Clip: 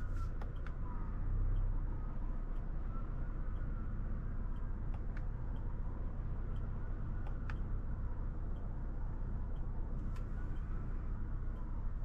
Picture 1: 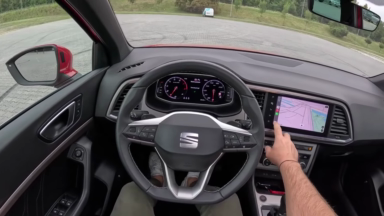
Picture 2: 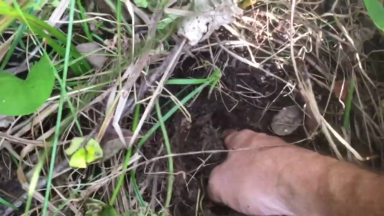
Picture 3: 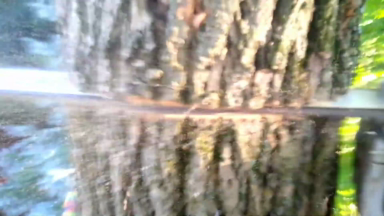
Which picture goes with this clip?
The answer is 1